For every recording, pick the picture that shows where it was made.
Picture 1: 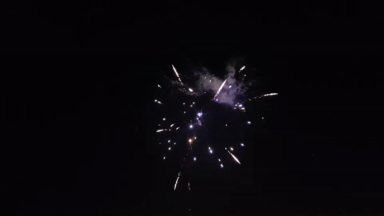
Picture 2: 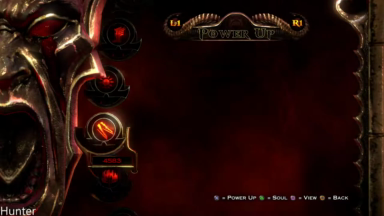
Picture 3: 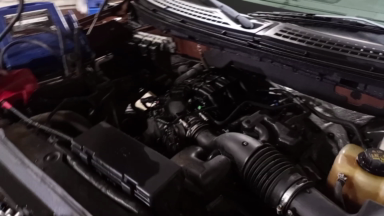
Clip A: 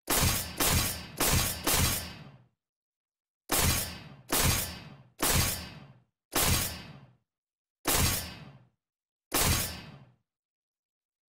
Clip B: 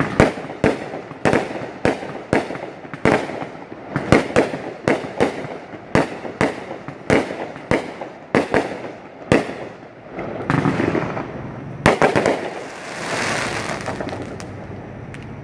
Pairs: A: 2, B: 1